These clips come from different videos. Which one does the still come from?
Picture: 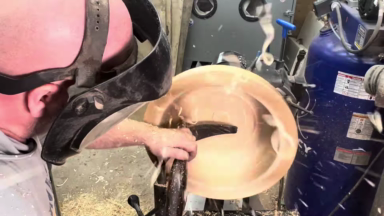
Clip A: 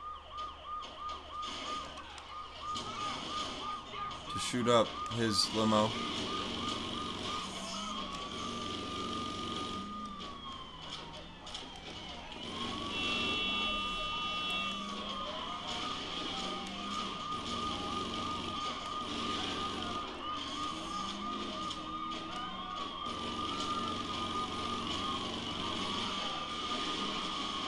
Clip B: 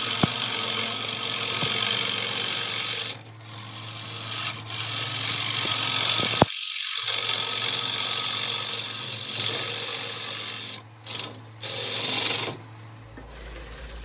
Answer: B